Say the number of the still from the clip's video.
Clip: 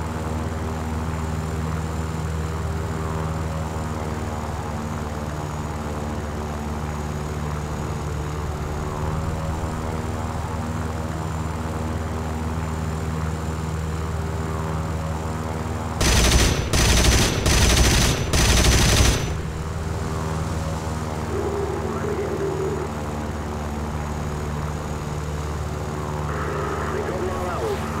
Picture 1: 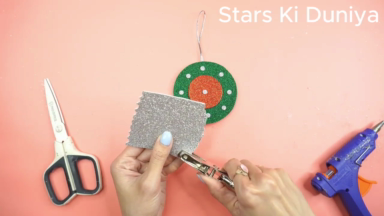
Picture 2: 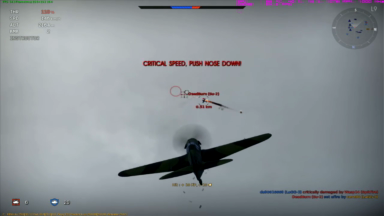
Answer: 2